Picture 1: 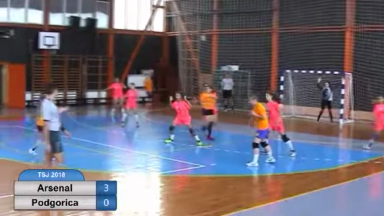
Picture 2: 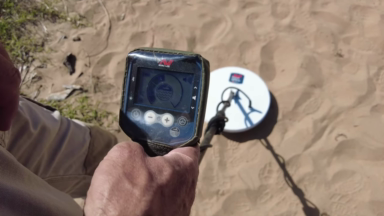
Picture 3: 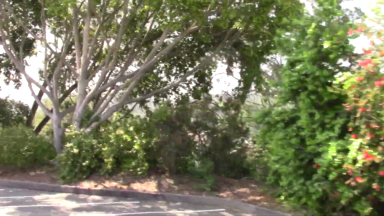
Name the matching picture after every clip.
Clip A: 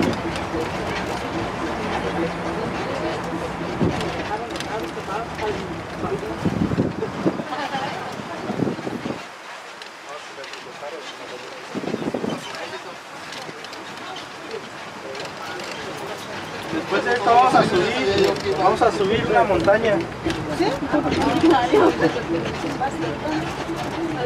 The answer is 3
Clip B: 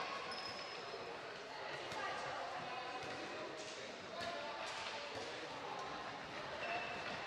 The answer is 1